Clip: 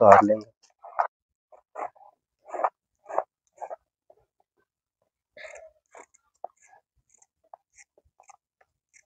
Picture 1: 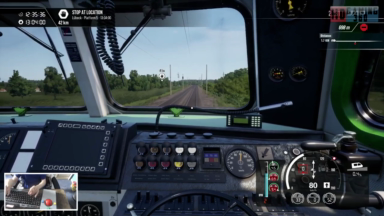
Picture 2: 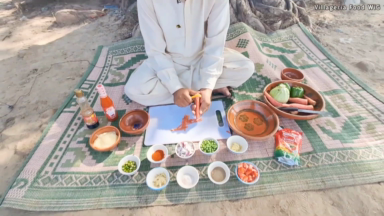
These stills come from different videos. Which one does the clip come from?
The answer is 2